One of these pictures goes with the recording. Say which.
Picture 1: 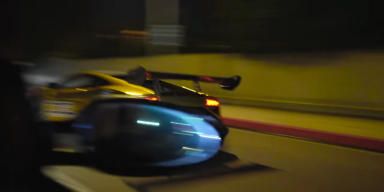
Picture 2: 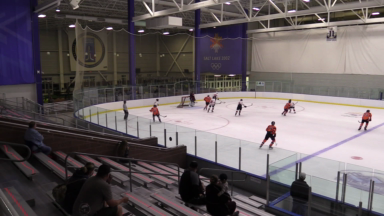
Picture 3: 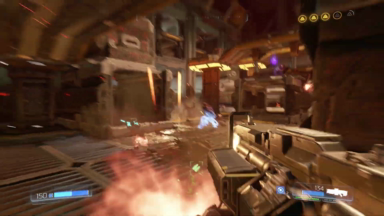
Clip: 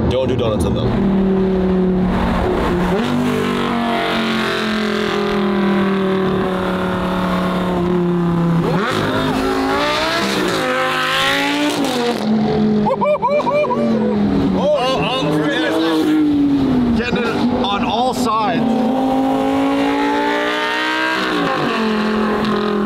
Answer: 1